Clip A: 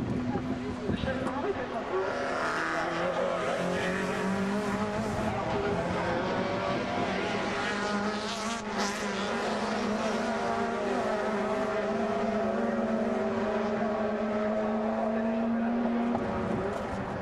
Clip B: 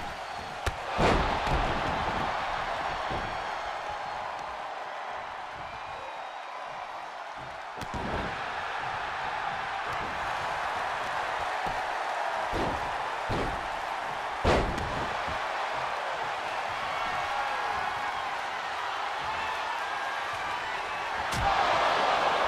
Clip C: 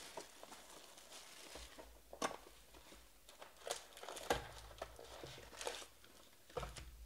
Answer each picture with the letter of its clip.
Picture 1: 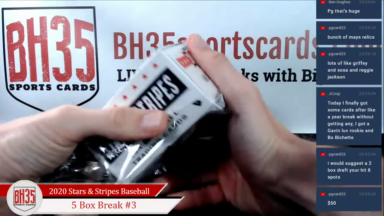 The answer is C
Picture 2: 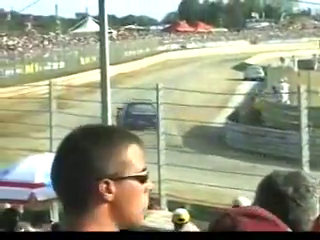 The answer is A